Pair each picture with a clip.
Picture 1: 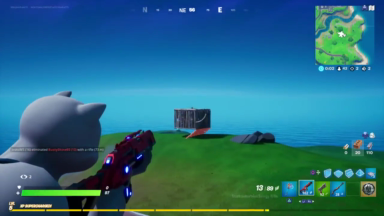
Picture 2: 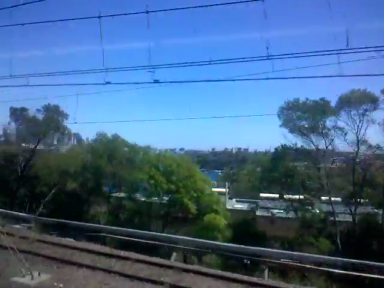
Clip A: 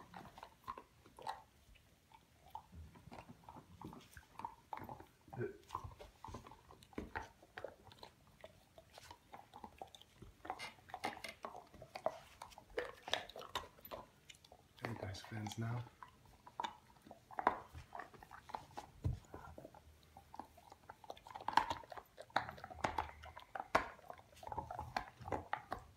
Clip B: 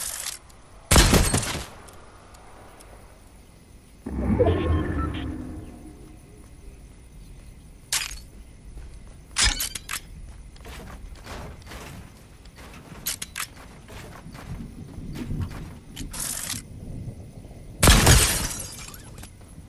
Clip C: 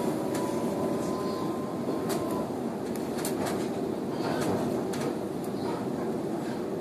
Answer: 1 B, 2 C